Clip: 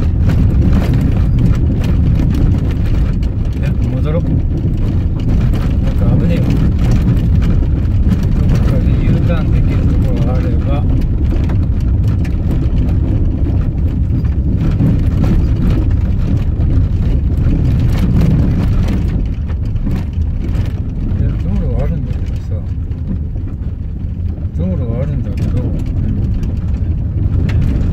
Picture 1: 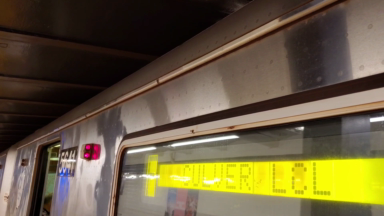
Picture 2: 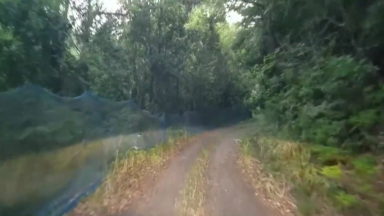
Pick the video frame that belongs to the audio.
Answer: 2